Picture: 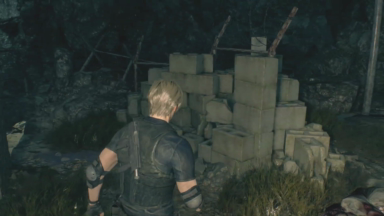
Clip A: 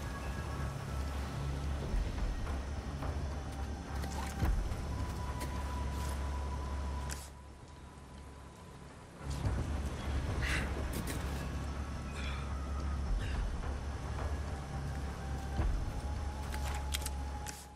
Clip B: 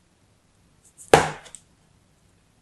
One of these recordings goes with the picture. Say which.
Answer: A